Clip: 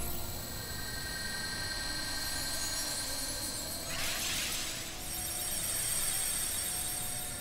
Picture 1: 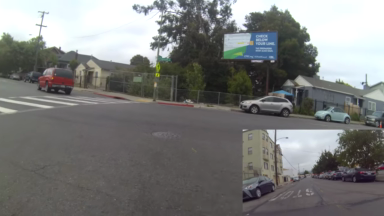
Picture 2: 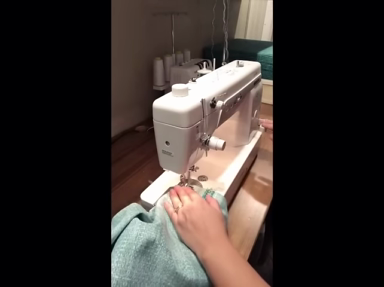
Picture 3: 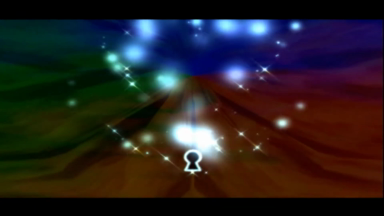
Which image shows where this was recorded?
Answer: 3